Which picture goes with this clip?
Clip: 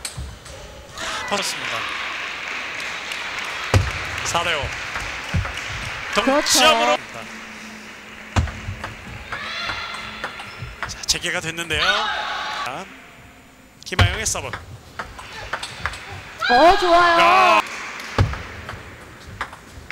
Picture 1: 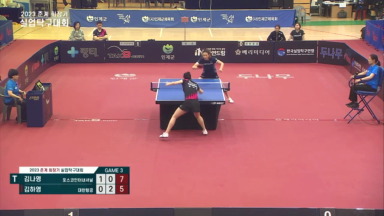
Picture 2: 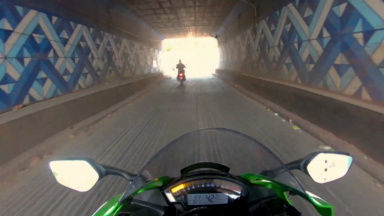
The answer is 1